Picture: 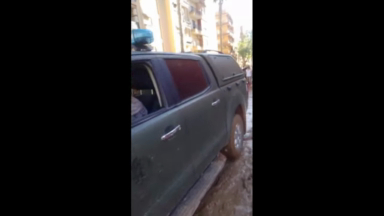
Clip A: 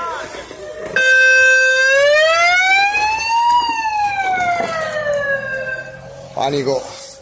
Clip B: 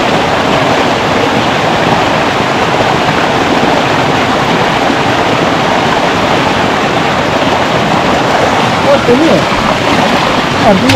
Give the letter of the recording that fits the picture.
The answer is A